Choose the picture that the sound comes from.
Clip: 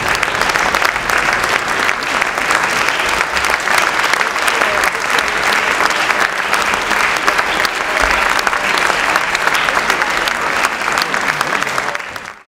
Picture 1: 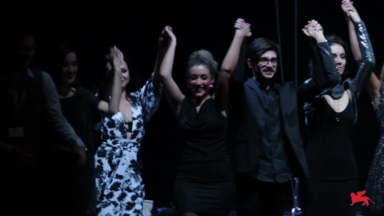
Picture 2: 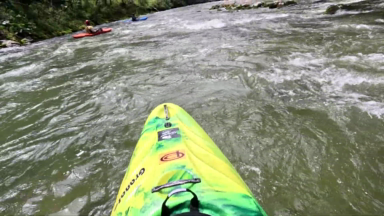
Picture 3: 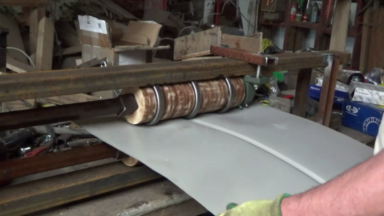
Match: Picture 1